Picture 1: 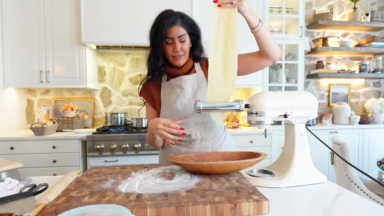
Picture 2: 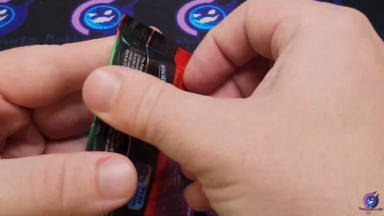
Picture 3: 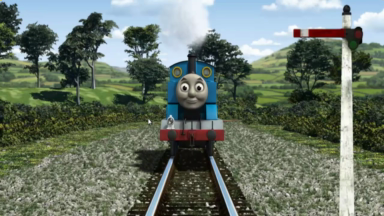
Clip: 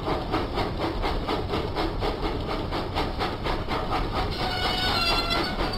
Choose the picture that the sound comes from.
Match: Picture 3